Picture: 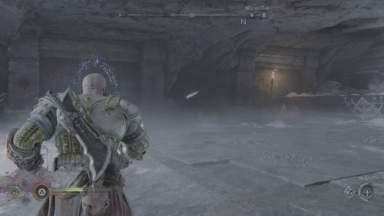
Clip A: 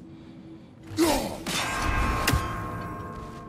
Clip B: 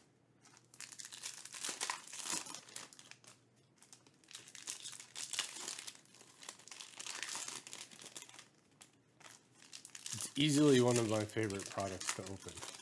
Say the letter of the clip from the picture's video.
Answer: A